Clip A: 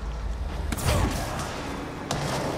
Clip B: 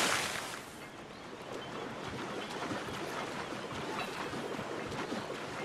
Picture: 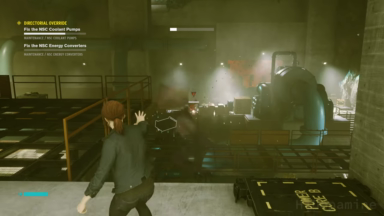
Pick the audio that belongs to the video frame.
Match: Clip A